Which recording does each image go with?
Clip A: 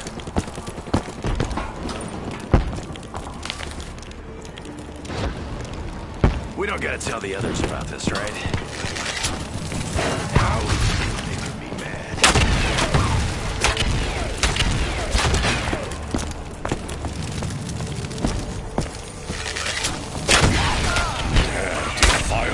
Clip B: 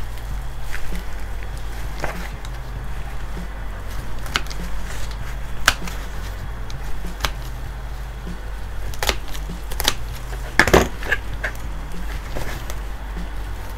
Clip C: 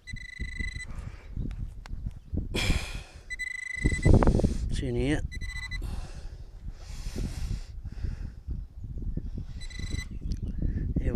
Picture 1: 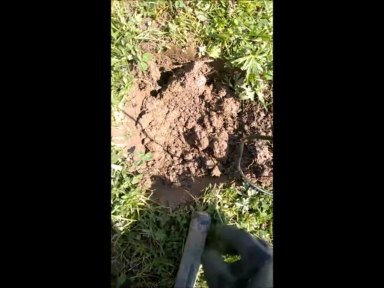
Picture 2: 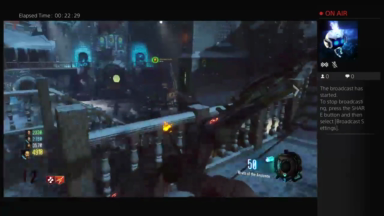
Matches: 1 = C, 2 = A